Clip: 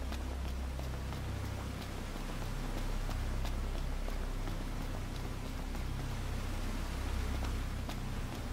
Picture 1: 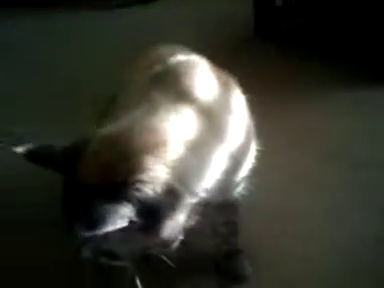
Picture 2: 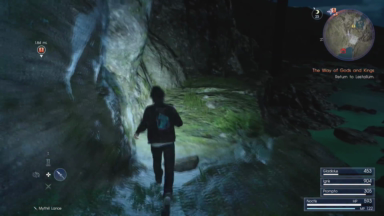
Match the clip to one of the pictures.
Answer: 2